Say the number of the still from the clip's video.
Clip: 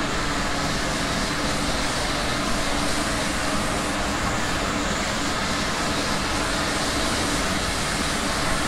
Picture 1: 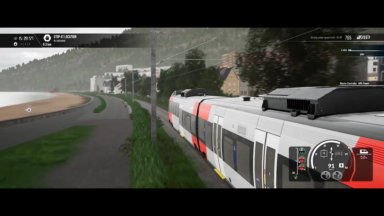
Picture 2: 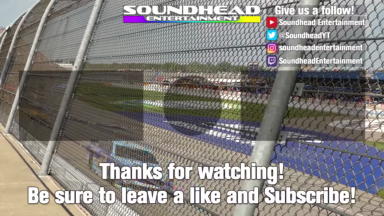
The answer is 1